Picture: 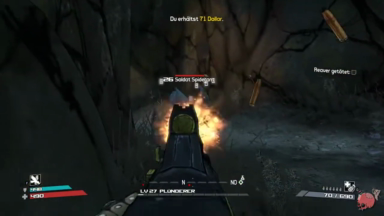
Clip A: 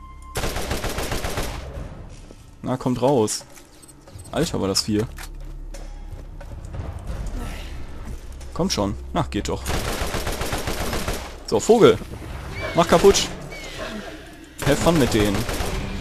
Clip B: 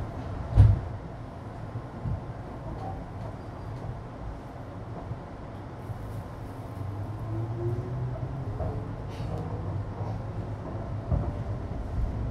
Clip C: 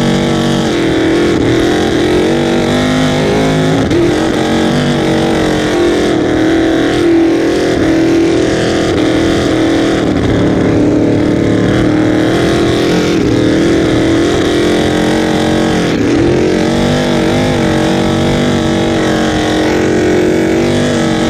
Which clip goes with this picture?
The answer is A